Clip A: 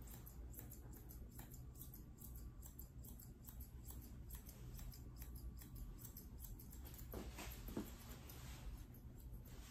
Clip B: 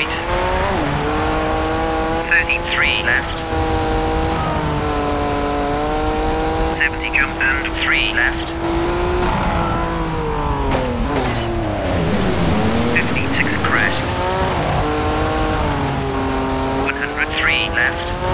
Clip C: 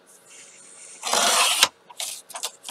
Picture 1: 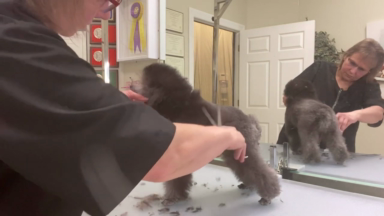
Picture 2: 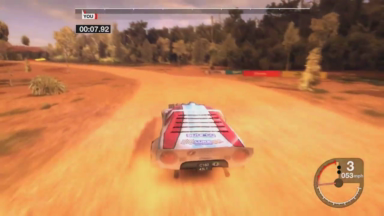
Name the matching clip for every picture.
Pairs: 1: A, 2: B